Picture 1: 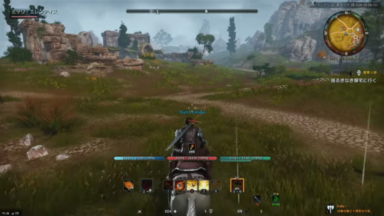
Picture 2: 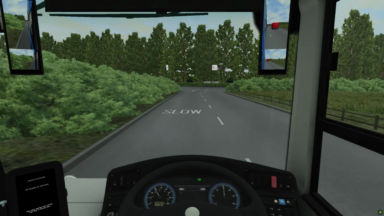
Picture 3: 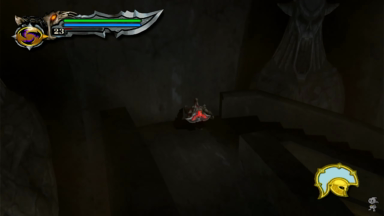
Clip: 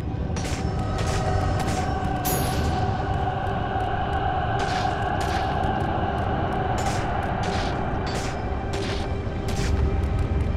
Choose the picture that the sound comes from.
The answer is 3